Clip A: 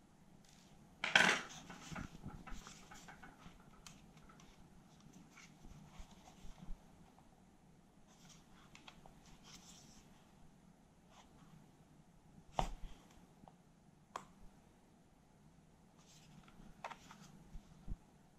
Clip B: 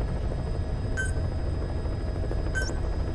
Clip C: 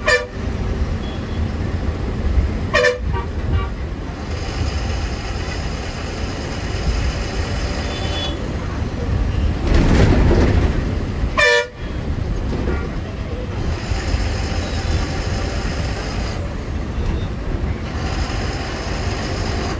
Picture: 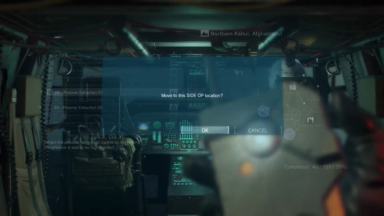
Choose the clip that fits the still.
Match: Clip B